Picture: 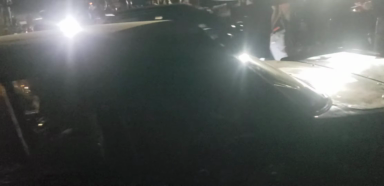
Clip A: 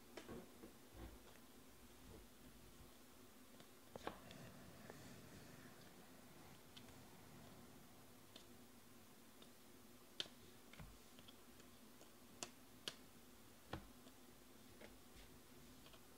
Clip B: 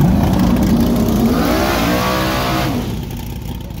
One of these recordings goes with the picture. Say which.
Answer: B